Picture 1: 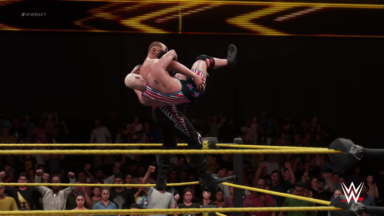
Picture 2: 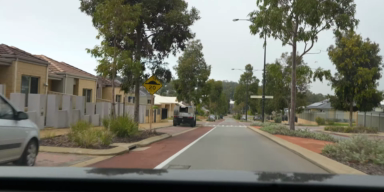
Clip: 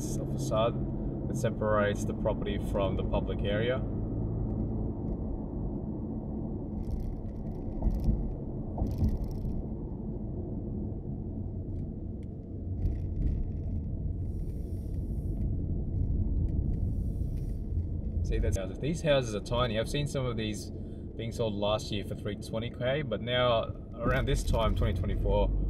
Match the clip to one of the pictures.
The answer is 2